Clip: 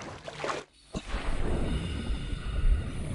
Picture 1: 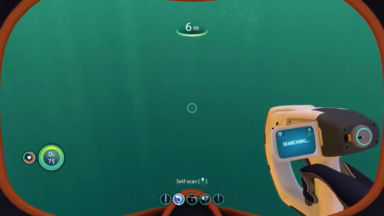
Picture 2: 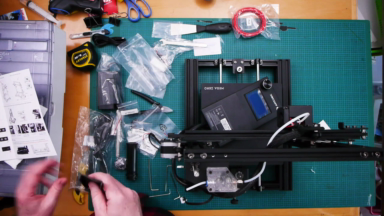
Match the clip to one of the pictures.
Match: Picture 1